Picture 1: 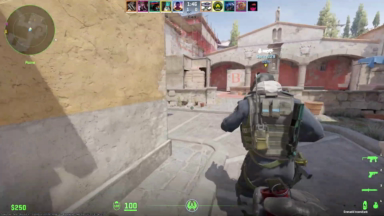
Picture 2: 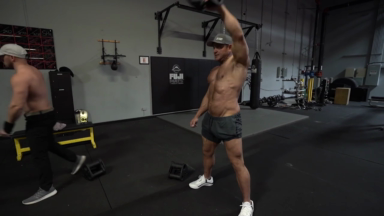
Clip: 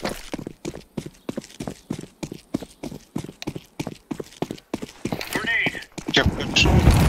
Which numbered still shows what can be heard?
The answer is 1